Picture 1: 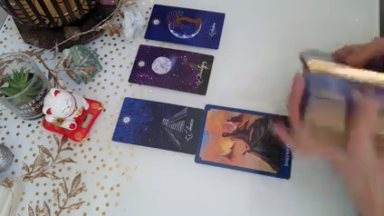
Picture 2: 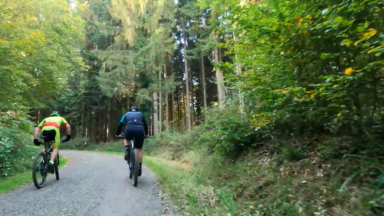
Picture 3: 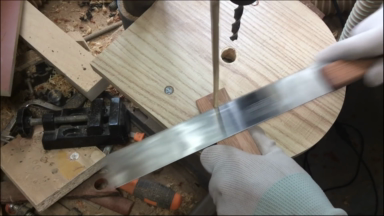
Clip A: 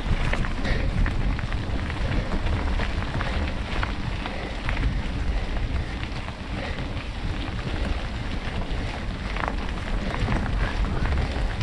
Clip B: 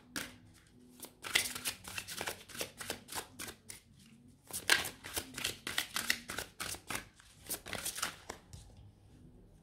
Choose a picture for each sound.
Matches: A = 2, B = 1